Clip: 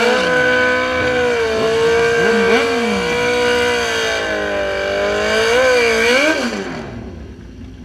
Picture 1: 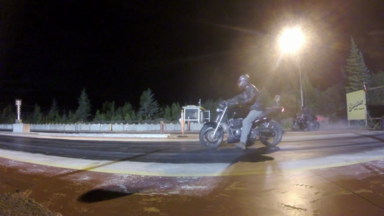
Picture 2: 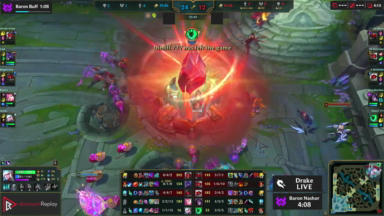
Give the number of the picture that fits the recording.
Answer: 1